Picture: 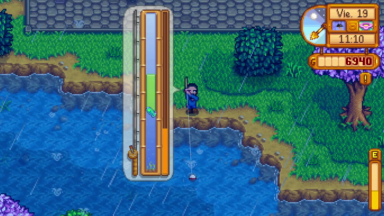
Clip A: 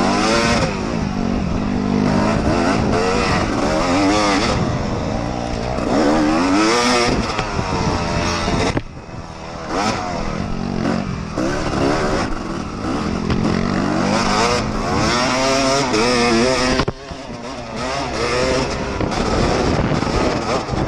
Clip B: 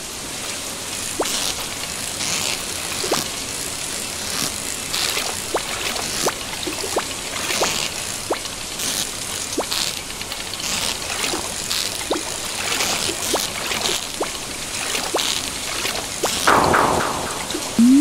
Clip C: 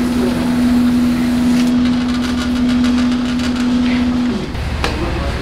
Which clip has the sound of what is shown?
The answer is B